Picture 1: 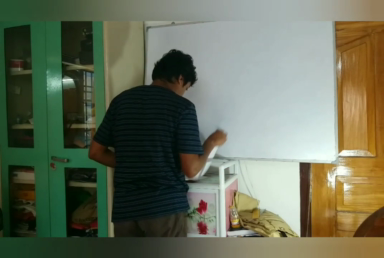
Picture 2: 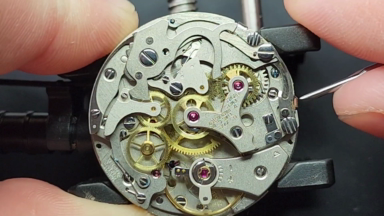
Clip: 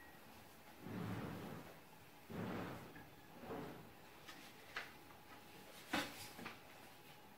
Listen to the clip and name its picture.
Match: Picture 1